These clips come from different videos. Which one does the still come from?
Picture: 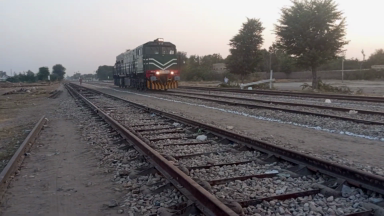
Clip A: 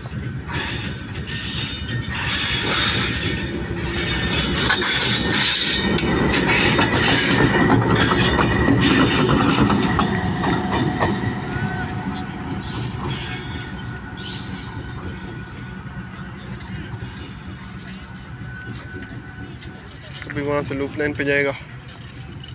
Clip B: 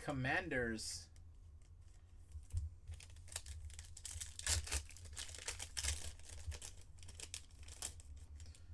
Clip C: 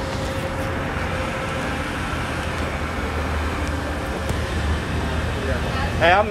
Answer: A